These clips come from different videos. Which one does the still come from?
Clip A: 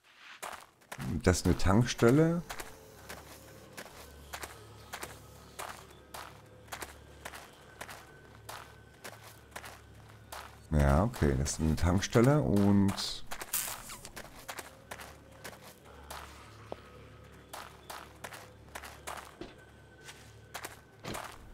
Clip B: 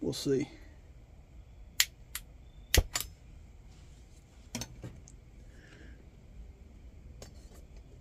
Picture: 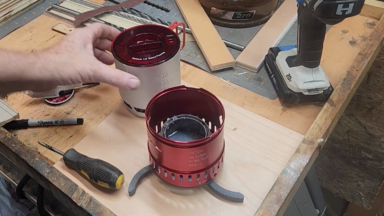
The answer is B